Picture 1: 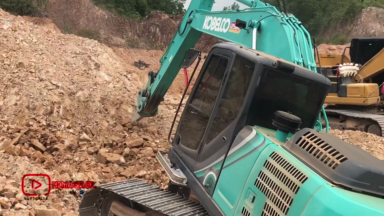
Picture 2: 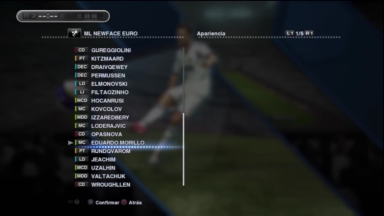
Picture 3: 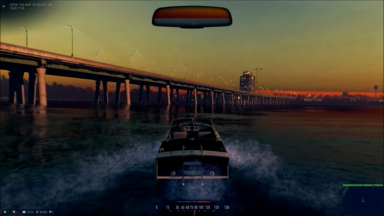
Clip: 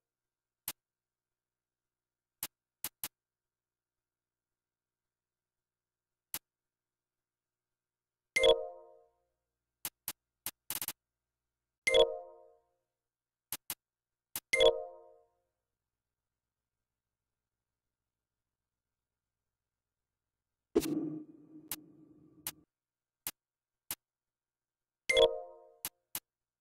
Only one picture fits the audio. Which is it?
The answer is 2